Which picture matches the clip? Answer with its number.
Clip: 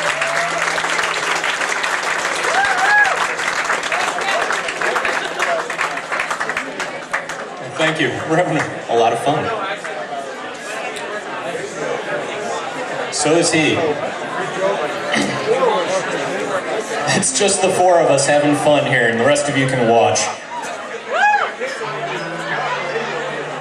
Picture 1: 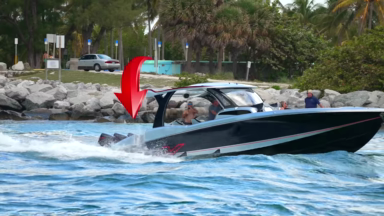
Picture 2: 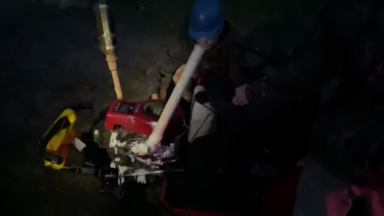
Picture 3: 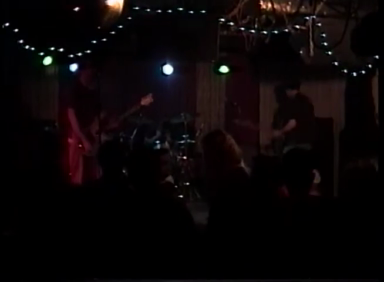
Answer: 3